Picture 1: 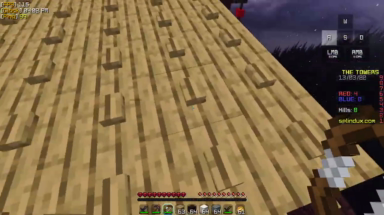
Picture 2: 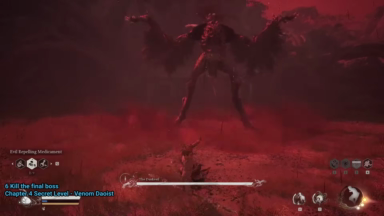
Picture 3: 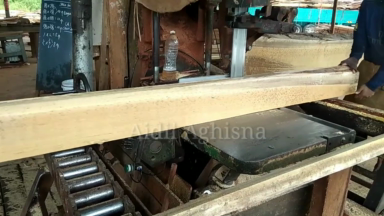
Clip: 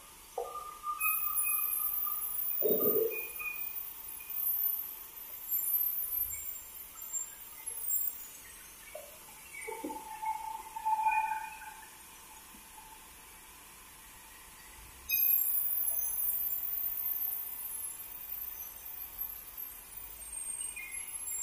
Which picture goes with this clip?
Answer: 3